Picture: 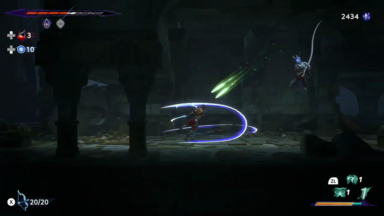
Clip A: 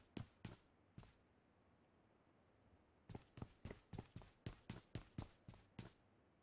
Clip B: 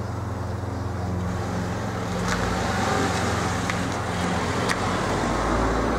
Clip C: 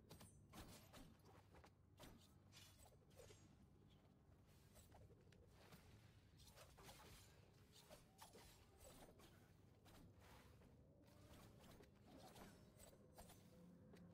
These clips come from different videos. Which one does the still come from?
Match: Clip C